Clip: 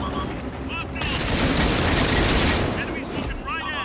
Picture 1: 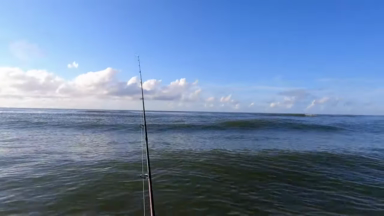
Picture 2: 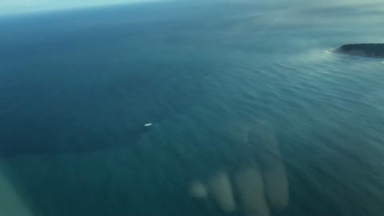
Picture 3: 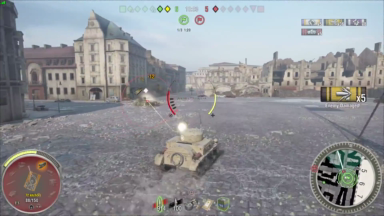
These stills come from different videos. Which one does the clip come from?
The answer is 3